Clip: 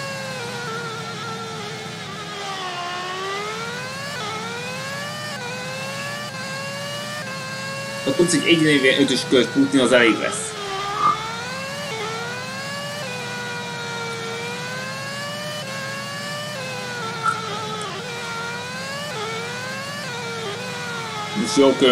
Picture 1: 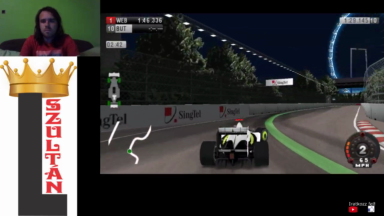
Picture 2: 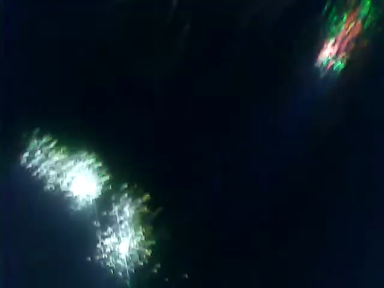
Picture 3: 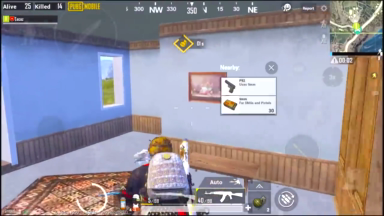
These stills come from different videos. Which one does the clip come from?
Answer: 1